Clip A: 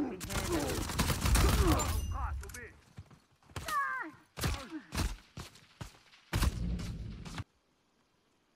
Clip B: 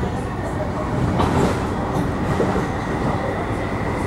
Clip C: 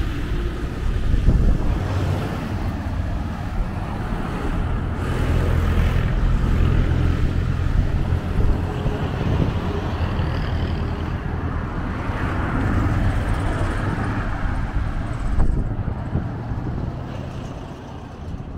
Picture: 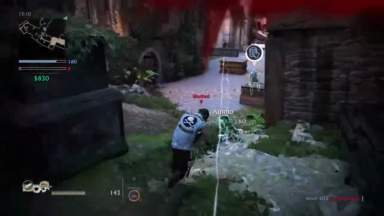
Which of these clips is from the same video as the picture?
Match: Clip A